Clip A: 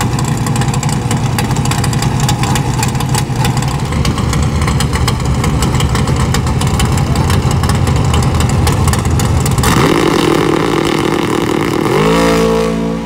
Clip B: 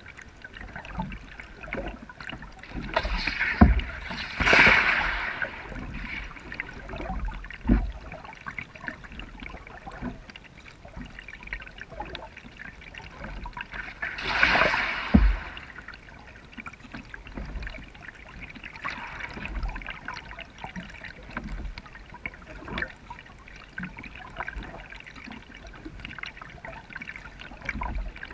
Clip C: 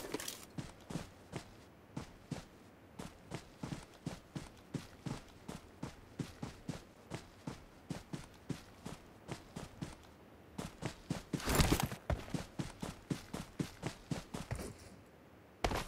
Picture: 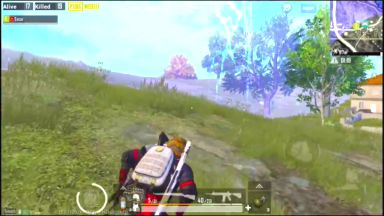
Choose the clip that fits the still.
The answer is C